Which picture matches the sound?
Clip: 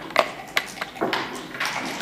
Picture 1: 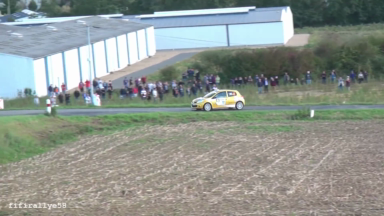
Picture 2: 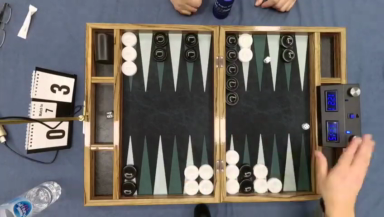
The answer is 2